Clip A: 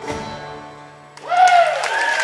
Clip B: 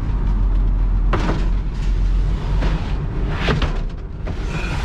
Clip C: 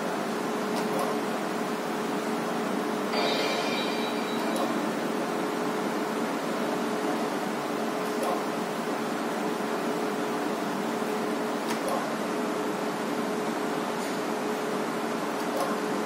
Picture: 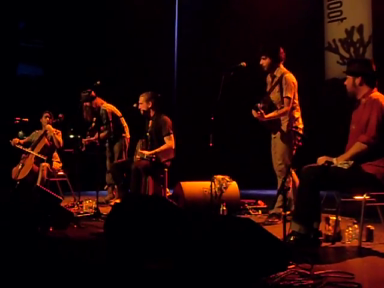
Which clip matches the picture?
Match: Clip A